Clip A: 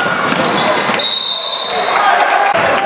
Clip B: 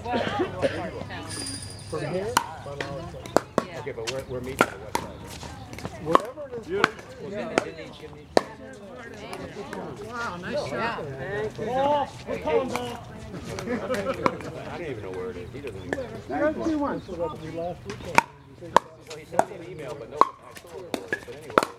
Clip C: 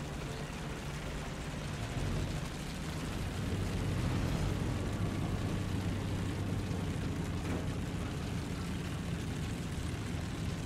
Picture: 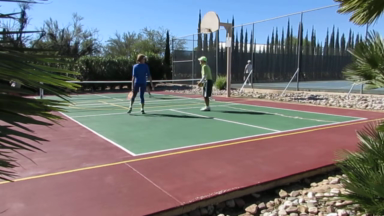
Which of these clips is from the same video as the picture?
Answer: B